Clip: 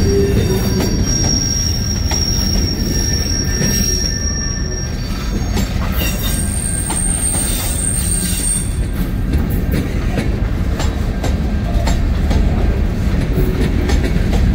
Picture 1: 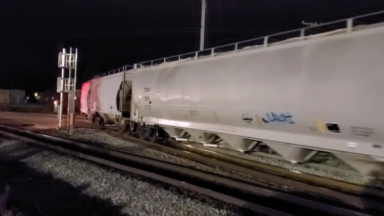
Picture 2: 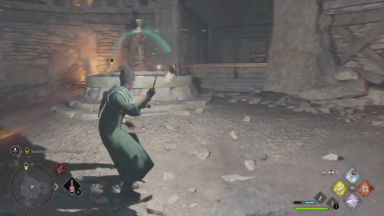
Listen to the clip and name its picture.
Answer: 1